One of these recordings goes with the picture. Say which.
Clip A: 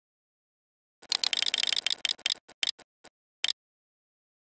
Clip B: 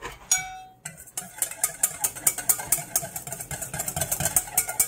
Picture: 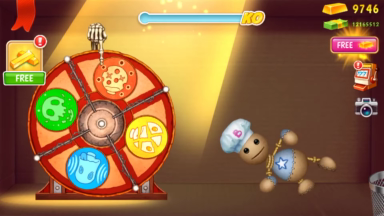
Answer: A